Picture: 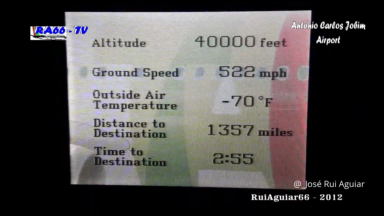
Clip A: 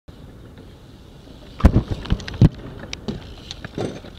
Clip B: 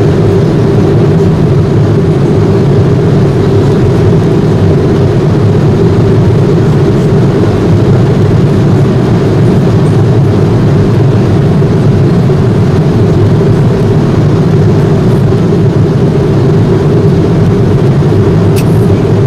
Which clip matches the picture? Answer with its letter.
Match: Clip B